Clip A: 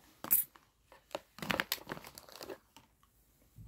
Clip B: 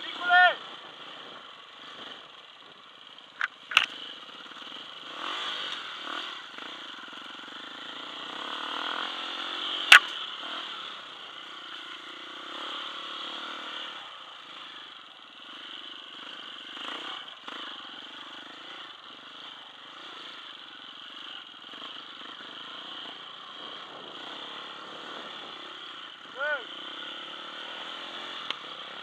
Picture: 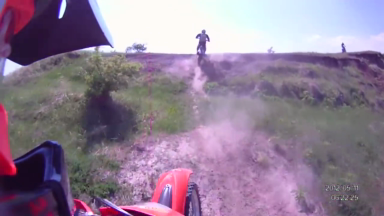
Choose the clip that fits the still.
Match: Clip B